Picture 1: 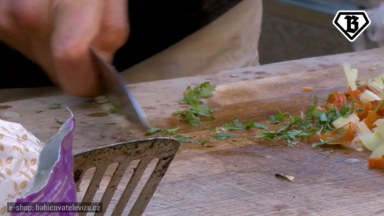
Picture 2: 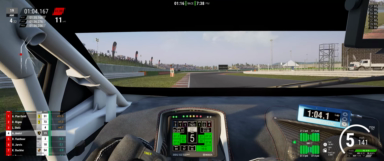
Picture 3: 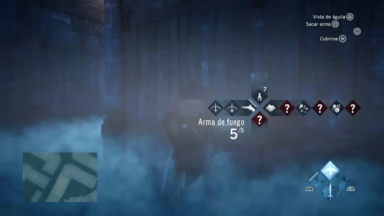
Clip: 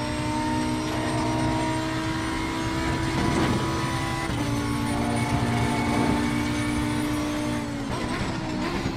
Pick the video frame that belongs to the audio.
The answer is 2